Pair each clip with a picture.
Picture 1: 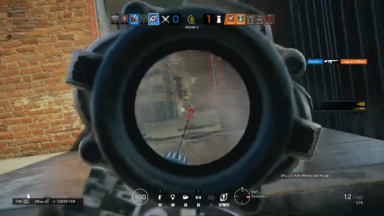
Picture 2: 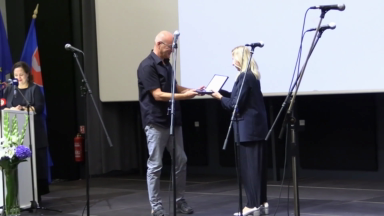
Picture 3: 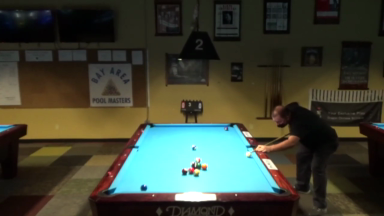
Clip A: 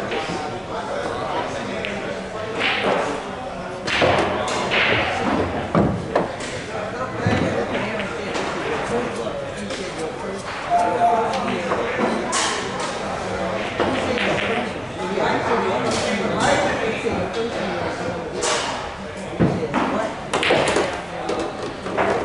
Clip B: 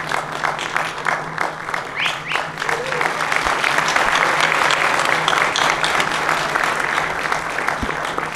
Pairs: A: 3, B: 2